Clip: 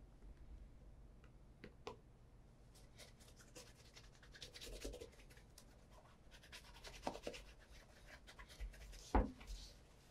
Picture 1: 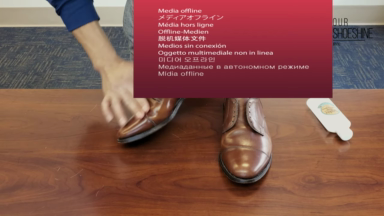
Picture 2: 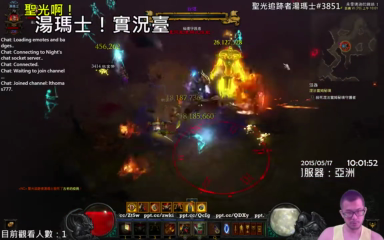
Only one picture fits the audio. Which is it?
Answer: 1